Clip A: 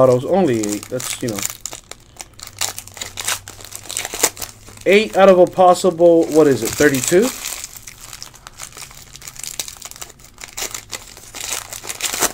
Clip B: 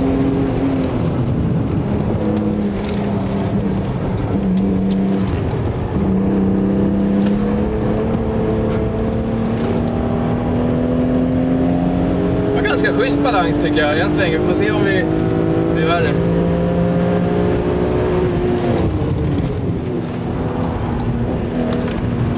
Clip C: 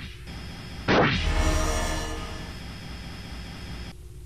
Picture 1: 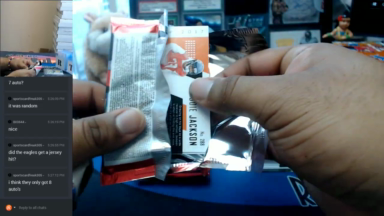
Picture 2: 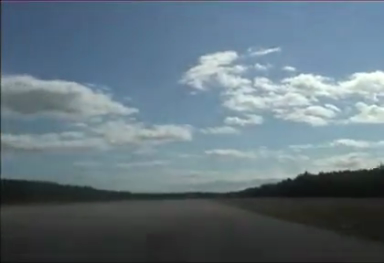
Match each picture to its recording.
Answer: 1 A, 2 B